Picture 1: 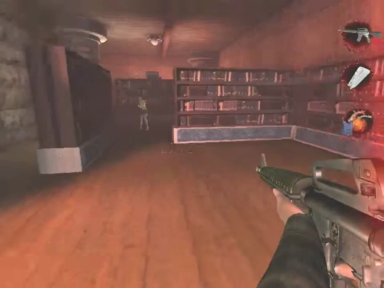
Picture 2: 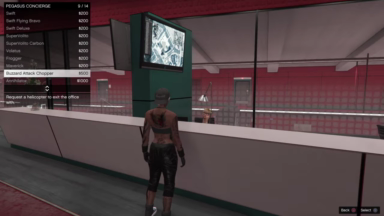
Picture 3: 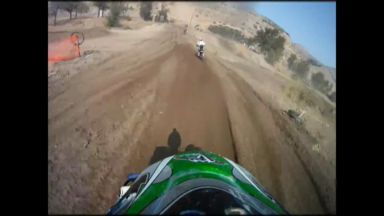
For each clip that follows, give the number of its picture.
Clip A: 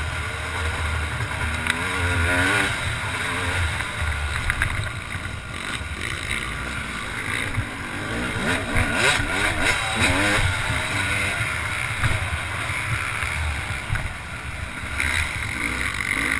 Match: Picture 3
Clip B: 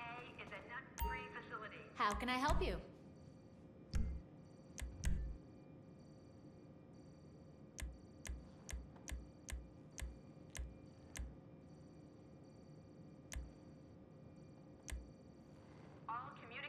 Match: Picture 2